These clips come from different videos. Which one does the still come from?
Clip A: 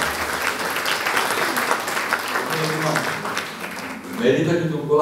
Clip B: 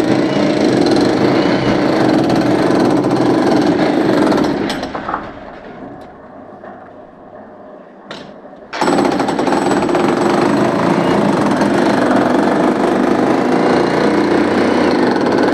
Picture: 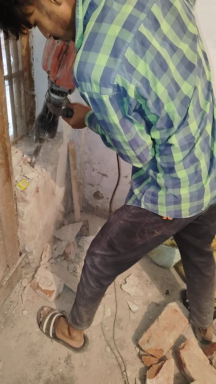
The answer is B